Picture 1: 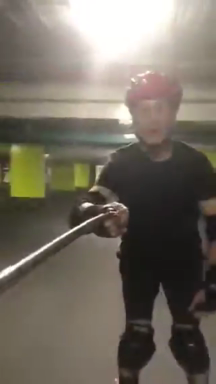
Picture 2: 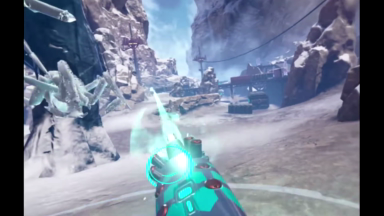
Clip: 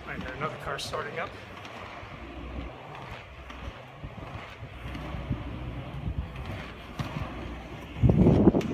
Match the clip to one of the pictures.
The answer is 1